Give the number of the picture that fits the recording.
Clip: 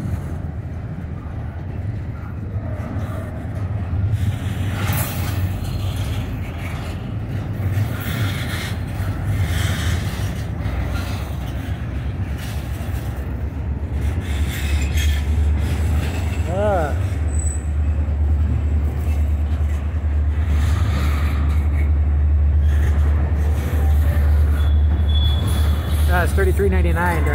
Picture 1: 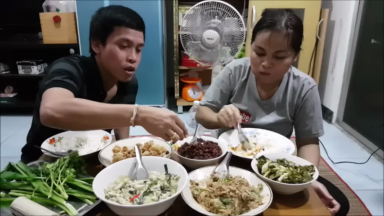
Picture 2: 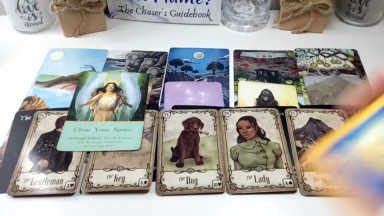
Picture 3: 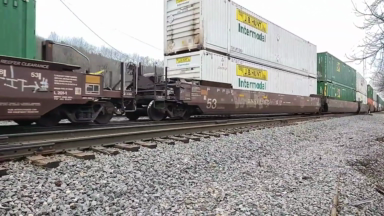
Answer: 3